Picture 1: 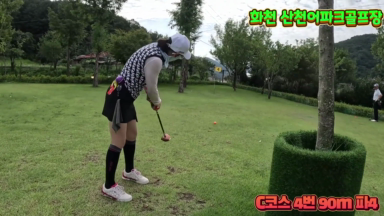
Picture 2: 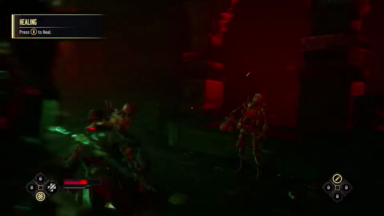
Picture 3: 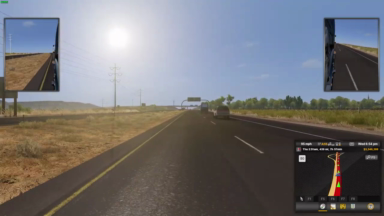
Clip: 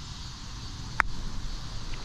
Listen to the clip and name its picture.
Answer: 1